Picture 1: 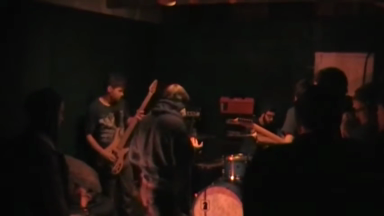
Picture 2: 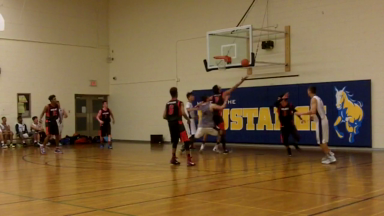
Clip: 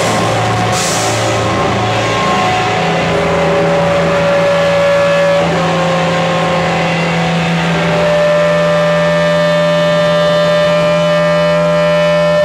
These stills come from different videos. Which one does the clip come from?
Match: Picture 1